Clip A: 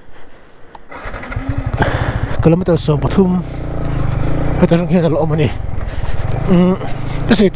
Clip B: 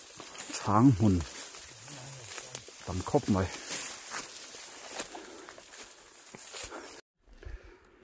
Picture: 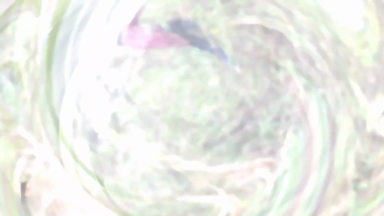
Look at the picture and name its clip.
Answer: B